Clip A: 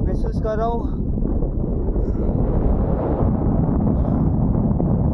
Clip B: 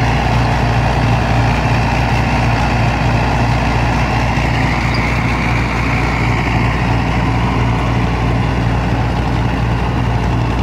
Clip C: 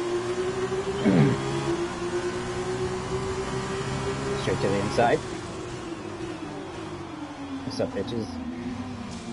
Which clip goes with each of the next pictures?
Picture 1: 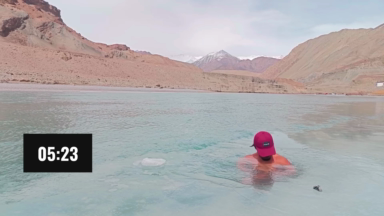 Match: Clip A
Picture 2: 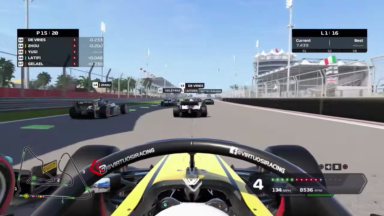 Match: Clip C